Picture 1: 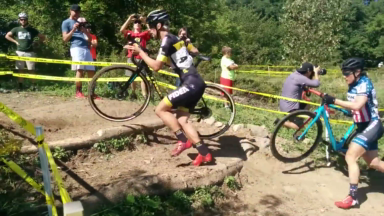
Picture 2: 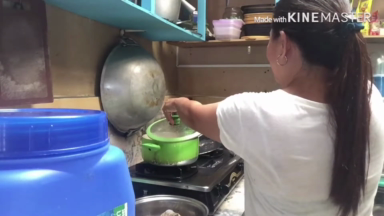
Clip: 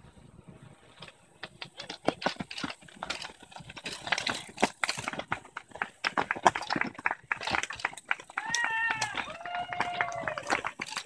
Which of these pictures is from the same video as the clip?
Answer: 1